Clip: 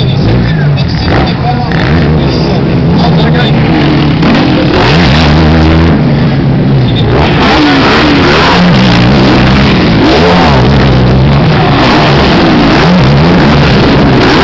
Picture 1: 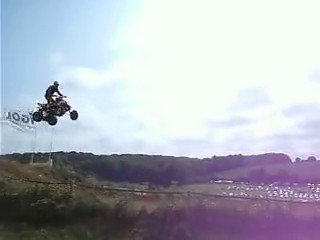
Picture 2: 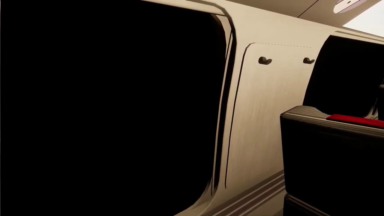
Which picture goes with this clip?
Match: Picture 1